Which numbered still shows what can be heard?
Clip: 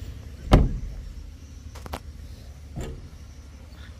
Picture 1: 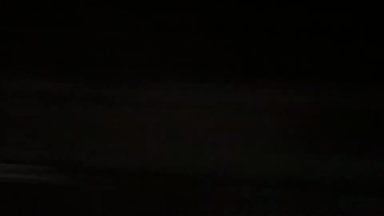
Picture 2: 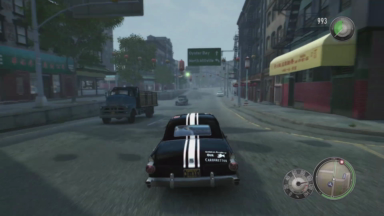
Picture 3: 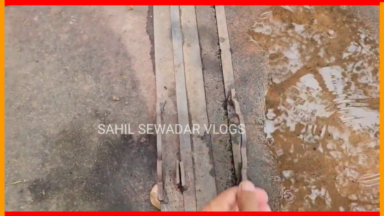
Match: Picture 3